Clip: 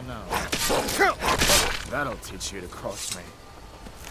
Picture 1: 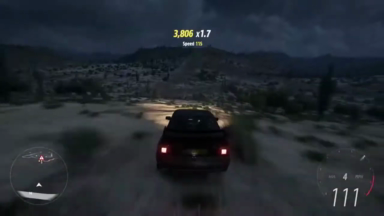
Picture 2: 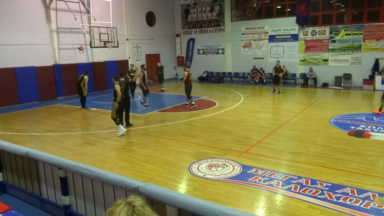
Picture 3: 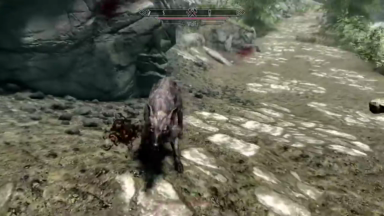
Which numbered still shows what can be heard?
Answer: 3